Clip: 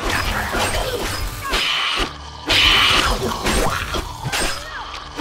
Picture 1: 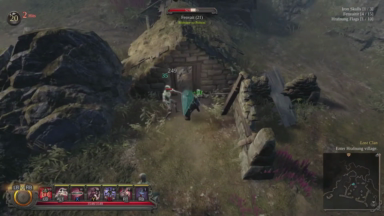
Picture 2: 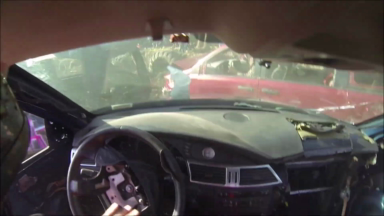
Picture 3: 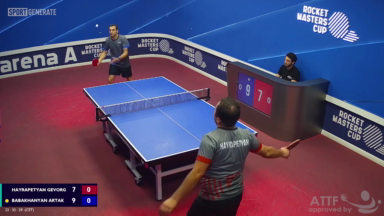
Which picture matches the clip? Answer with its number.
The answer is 1